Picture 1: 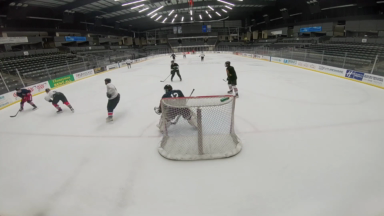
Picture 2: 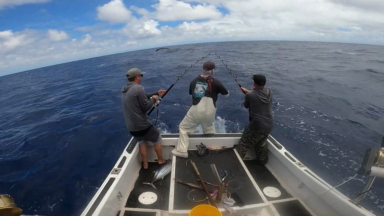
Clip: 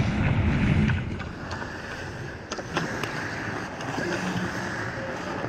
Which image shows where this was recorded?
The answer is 1